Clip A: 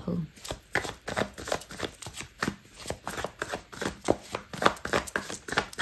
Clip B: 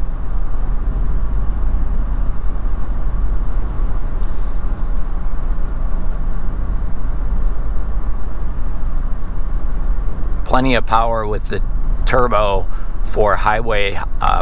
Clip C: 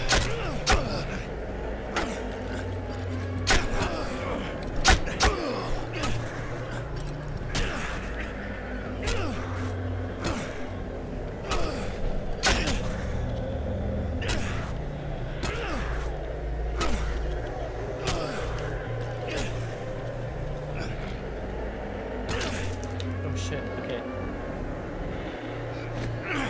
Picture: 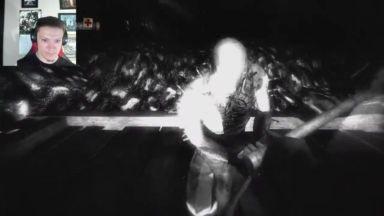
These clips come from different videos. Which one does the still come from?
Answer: C